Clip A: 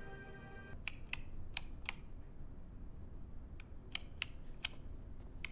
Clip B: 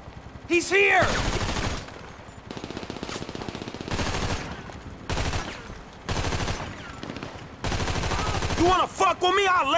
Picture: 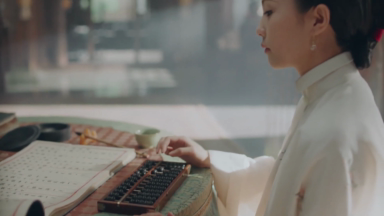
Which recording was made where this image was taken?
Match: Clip A